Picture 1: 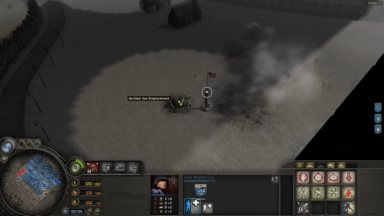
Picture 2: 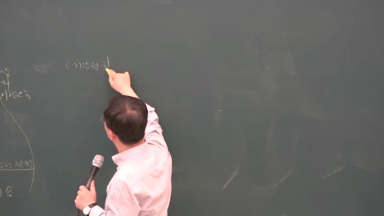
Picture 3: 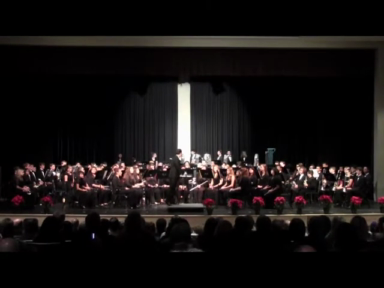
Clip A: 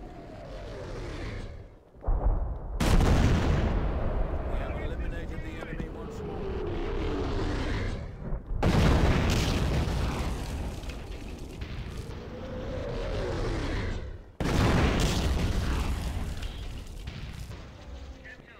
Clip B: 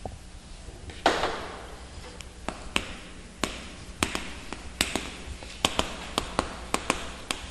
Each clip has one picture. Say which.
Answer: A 1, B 2